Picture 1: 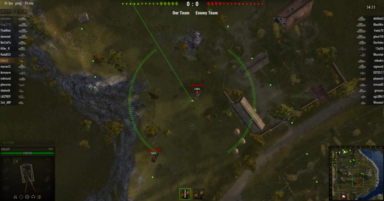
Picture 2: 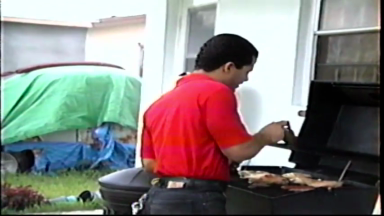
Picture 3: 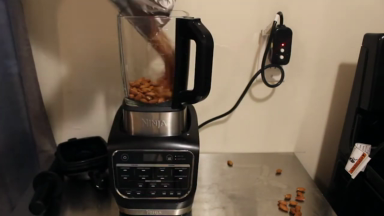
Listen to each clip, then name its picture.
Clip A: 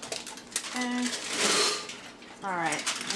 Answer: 3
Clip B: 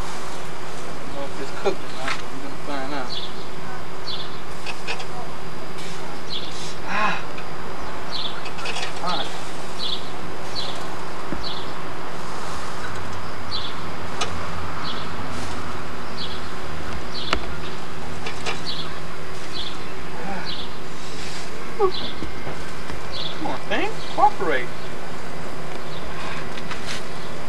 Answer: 2